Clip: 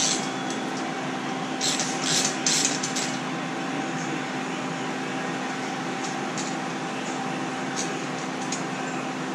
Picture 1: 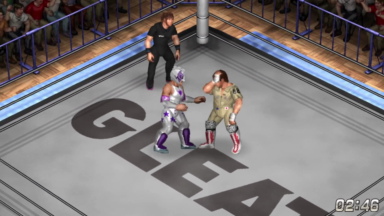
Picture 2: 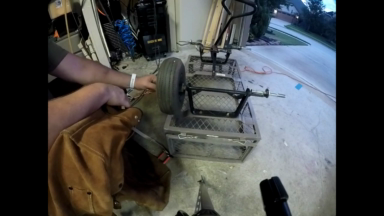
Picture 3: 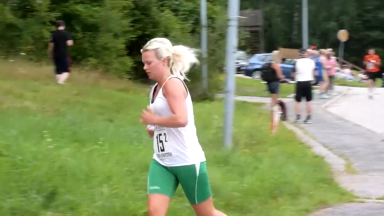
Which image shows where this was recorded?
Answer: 2